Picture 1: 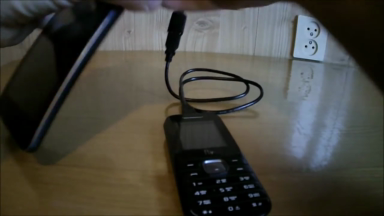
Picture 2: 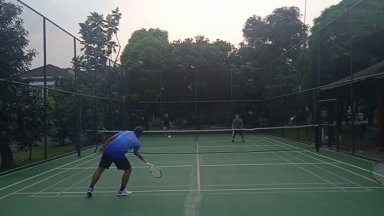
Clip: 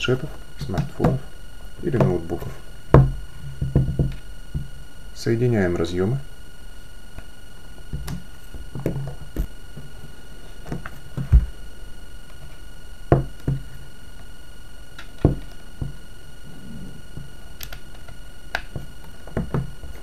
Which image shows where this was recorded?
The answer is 1